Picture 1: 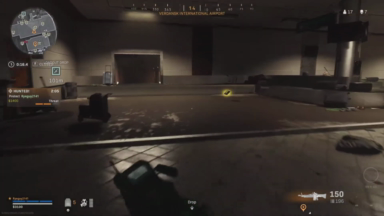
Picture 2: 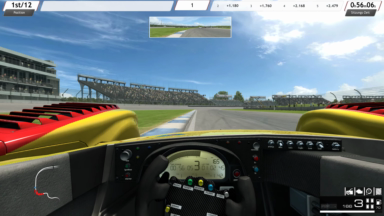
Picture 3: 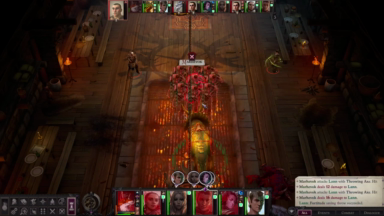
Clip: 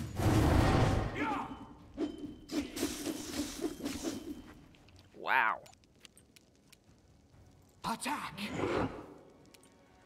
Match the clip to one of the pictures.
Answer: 3